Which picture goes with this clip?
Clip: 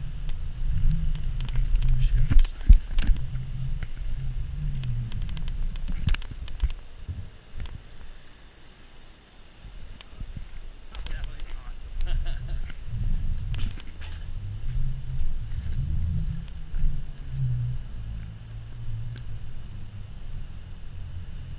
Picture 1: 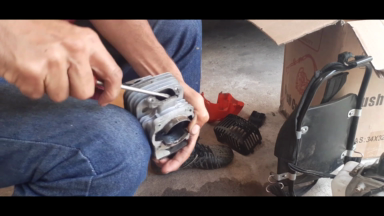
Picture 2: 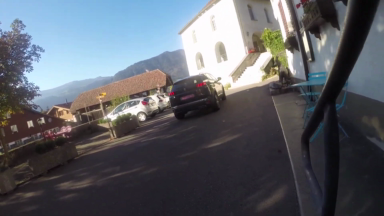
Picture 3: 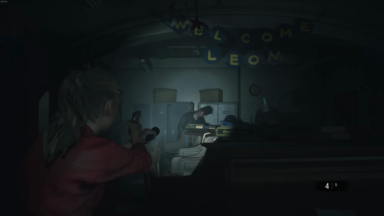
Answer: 2